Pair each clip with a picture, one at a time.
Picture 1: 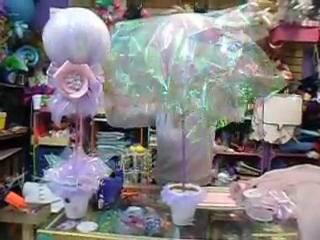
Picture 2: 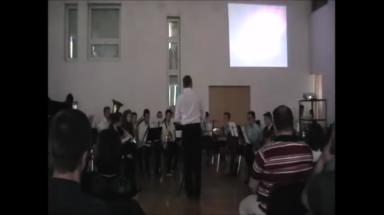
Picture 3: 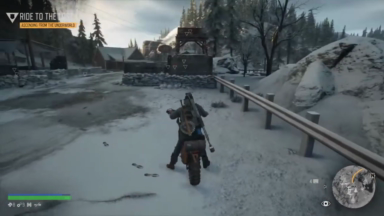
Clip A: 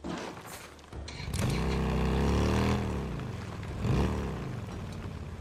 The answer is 3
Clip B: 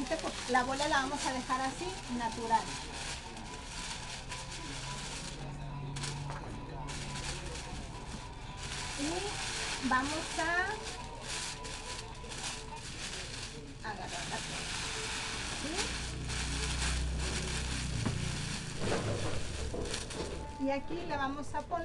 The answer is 1